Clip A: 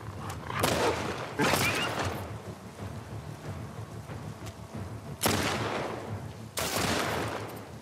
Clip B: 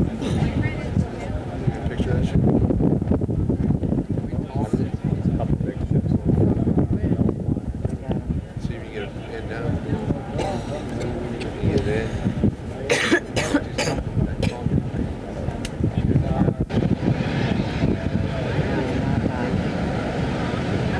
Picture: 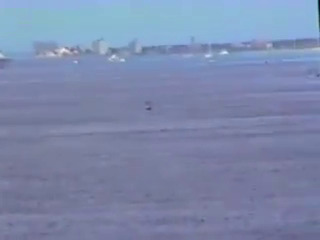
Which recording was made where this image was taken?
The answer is B